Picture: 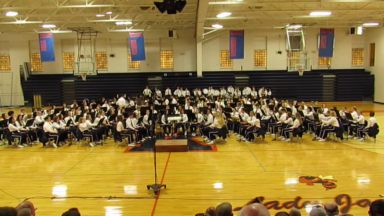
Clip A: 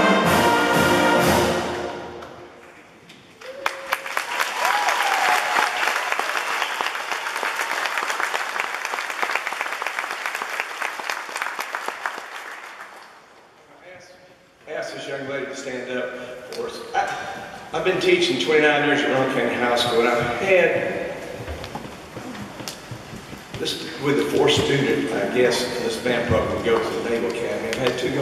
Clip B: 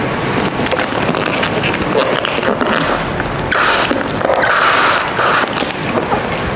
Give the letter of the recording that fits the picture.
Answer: A